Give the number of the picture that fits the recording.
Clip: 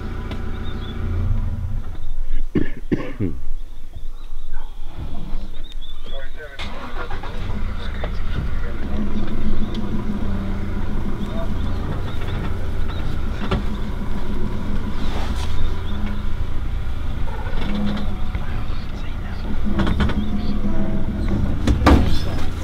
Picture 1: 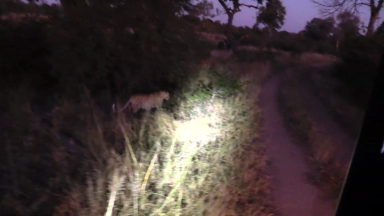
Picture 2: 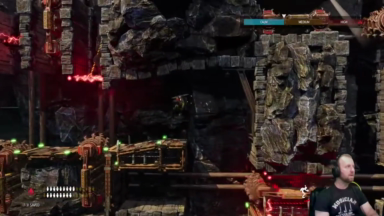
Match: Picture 1